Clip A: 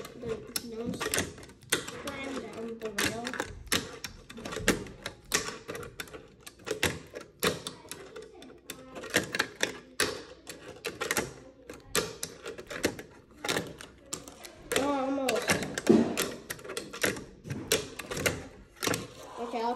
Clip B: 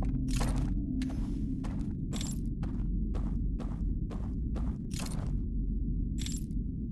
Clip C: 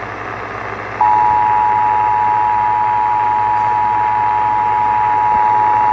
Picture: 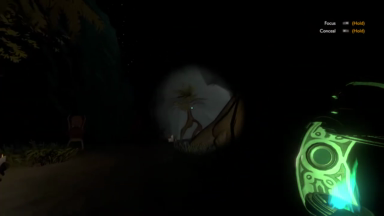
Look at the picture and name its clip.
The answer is B